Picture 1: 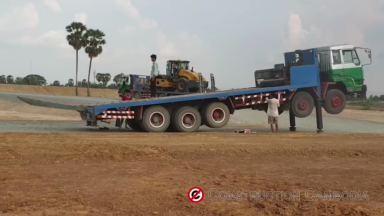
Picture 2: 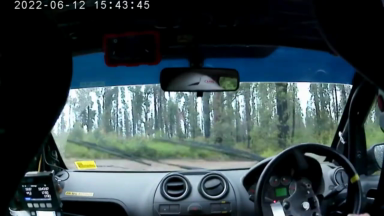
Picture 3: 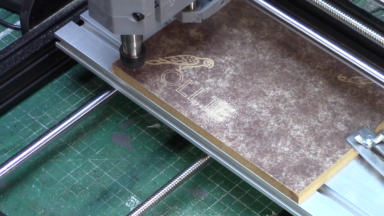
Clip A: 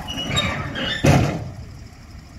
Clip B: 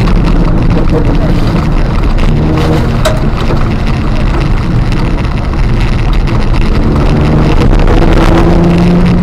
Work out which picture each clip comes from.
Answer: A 1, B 2